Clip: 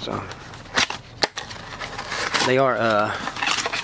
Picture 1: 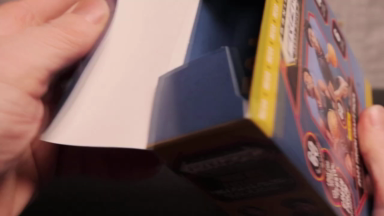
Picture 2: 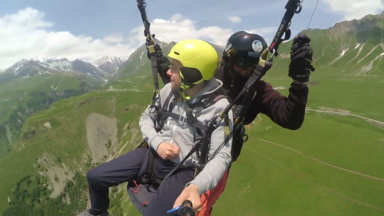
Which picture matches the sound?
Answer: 1